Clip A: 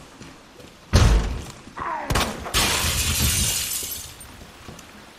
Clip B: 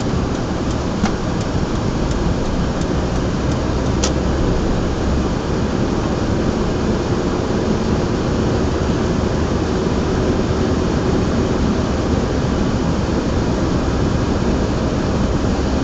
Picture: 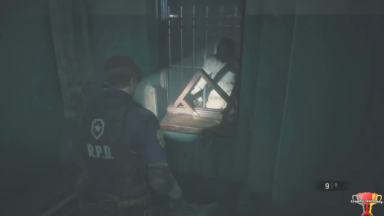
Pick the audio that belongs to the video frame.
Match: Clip A